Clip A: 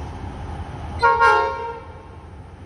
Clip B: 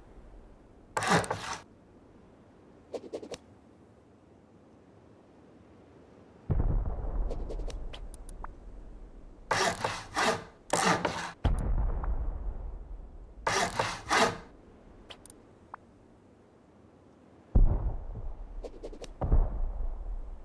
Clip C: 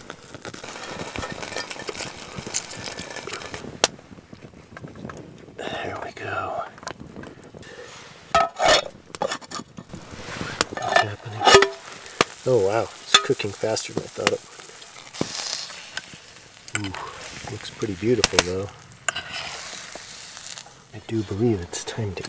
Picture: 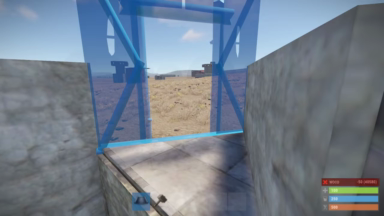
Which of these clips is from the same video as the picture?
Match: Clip B